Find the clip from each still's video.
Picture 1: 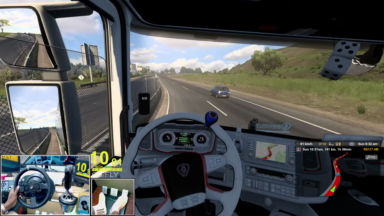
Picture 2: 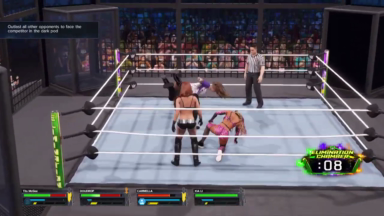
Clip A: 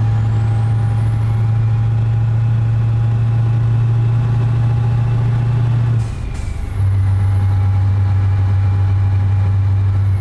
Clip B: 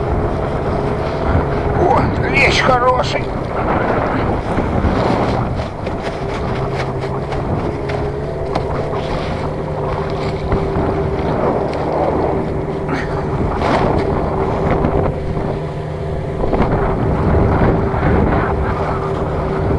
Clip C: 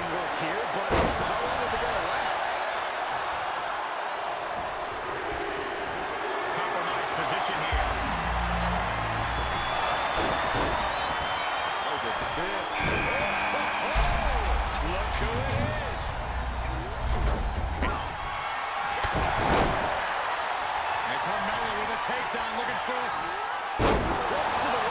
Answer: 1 A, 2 C